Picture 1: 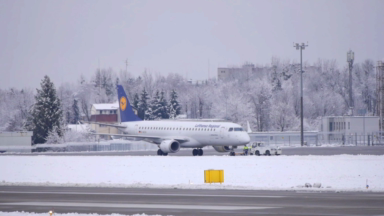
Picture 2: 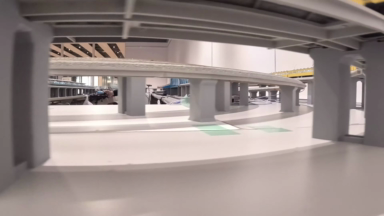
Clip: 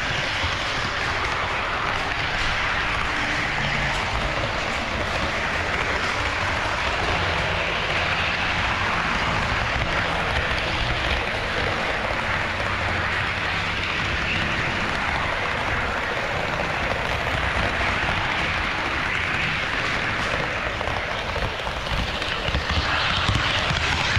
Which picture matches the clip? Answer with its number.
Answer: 2